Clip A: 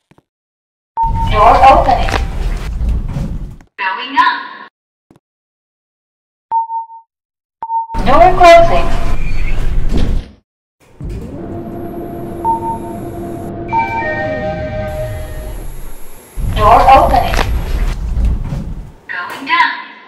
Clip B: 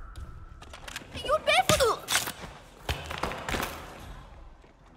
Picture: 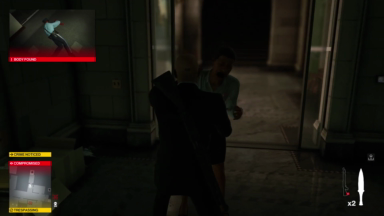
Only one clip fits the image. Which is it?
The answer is B